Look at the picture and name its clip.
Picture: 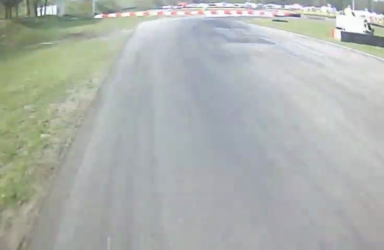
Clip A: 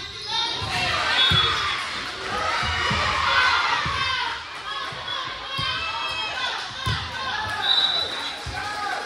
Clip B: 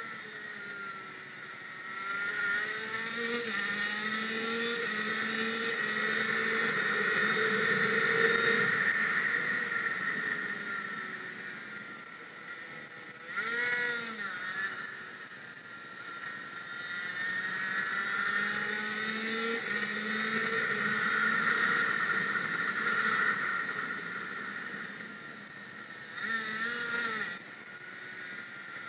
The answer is B